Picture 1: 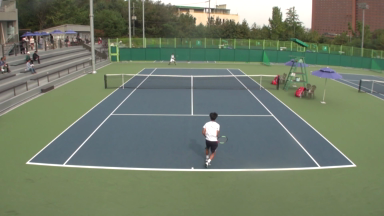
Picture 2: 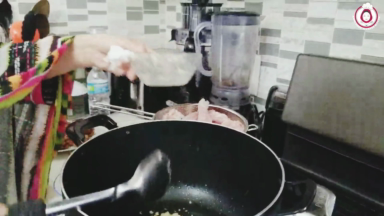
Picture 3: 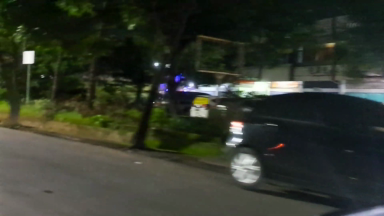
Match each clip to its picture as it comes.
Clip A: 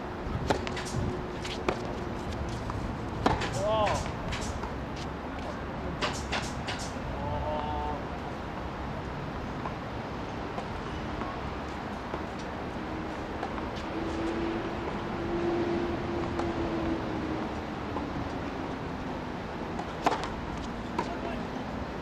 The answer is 1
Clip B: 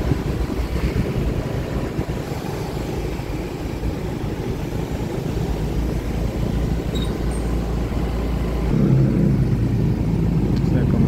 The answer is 3